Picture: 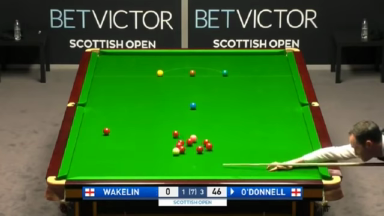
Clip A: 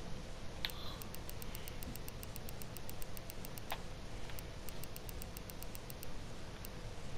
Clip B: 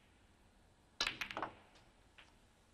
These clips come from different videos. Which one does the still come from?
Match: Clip B